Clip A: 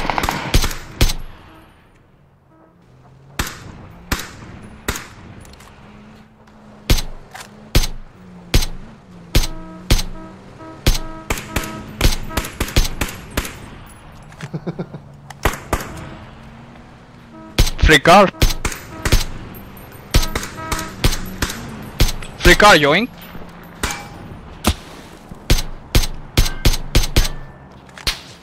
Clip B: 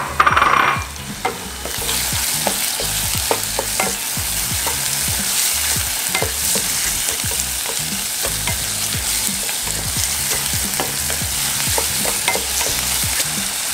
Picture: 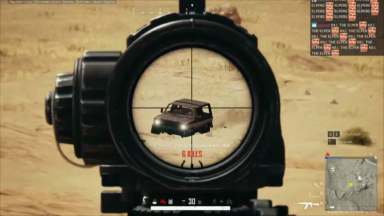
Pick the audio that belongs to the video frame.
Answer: A